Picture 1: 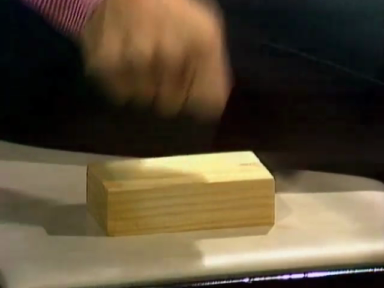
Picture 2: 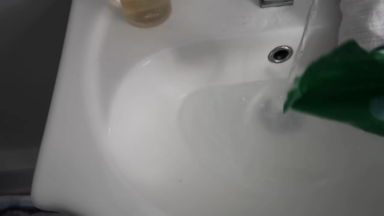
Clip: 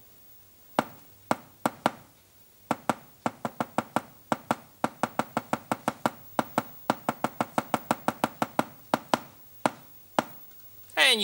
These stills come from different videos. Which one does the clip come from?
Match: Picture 1